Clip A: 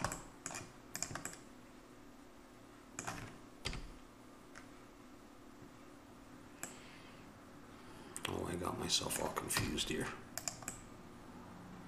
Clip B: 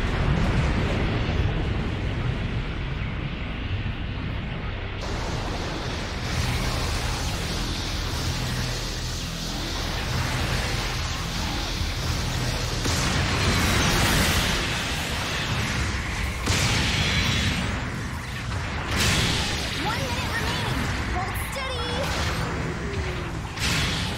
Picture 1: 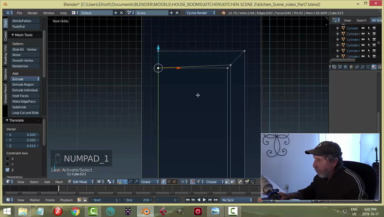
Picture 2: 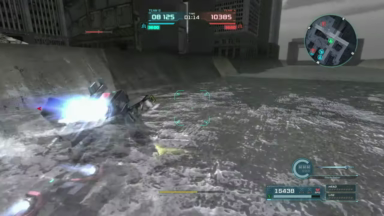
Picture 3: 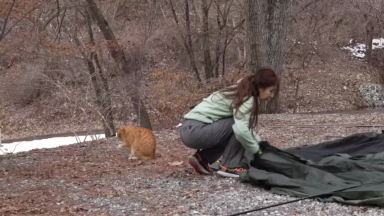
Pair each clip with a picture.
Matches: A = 1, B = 2